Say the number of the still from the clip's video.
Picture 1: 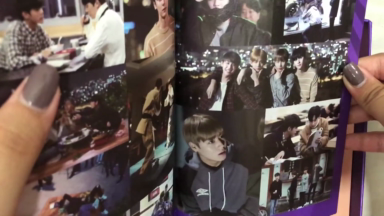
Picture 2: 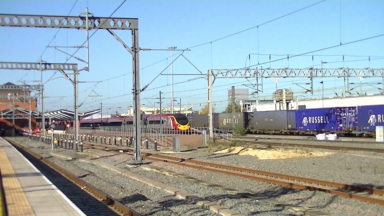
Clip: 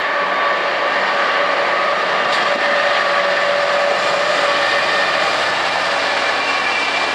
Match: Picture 2